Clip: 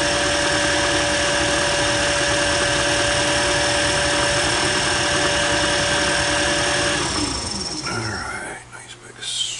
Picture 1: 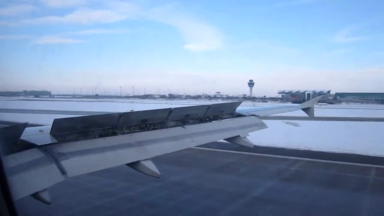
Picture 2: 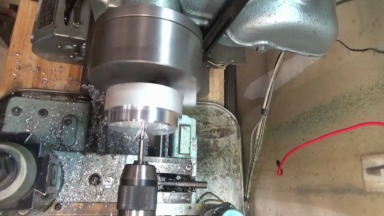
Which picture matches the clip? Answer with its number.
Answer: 2